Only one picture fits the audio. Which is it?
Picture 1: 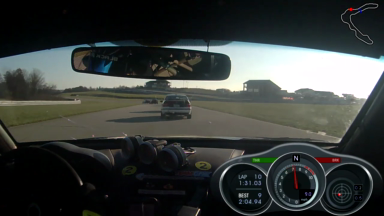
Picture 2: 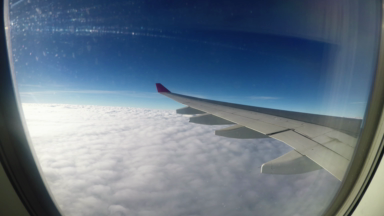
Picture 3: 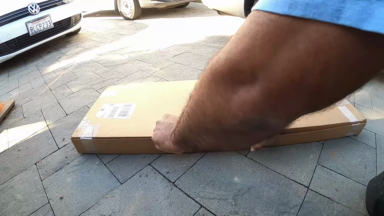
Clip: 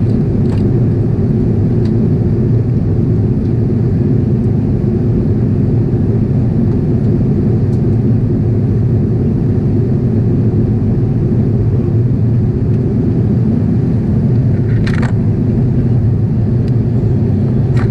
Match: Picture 2